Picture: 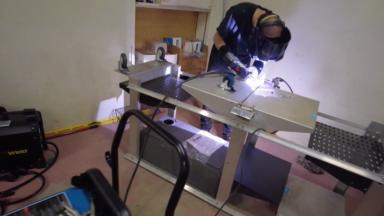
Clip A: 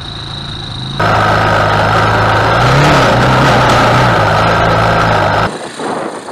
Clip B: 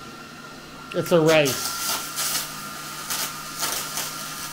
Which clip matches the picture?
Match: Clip B